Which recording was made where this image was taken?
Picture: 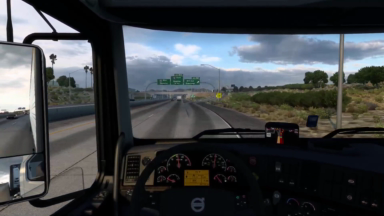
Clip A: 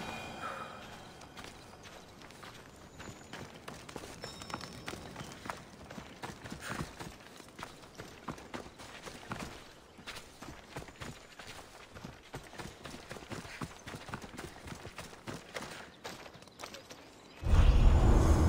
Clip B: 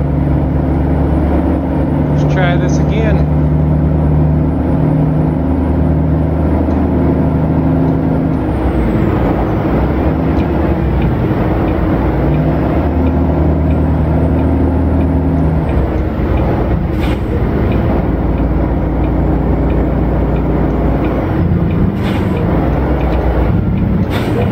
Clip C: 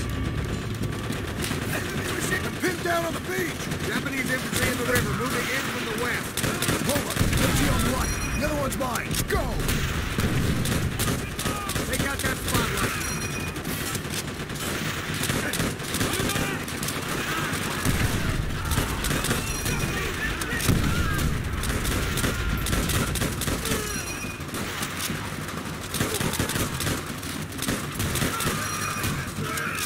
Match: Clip B